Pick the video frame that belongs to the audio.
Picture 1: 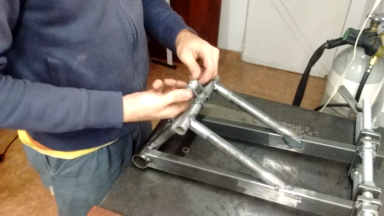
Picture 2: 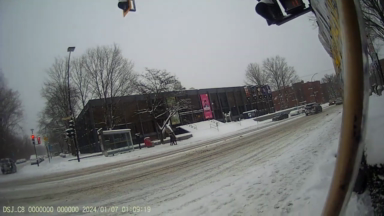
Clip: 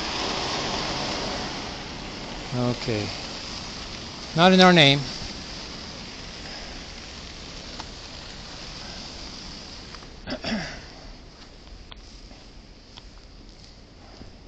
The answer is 2